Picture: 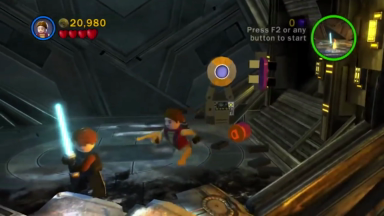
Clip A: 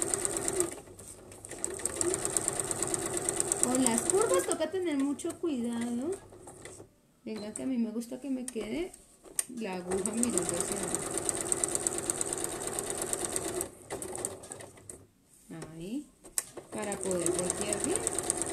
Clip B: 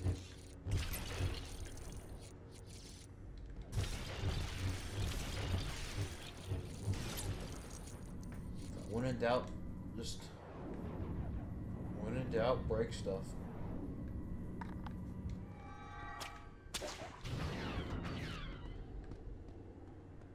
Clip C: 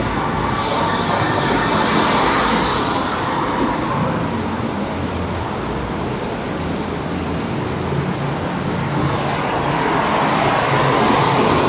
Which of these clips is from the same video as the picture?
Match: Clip B